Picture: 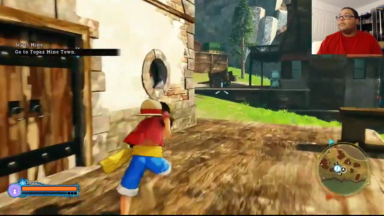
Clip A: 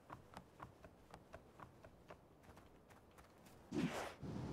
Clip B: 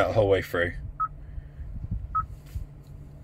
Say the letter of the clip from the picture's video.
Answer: A